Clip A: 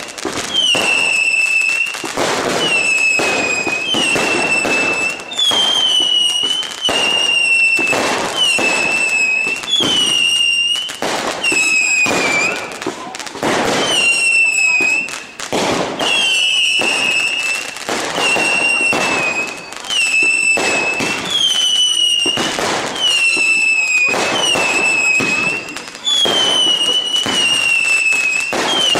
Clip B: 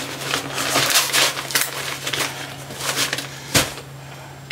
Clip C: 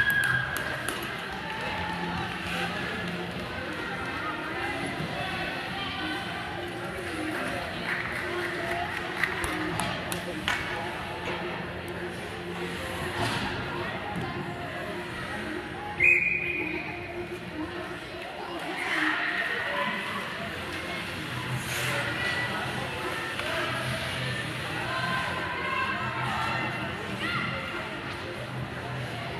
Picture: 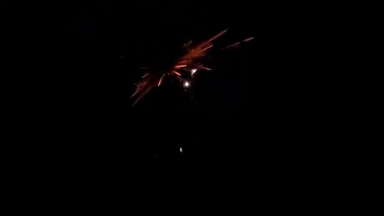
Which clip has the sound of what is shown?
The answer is A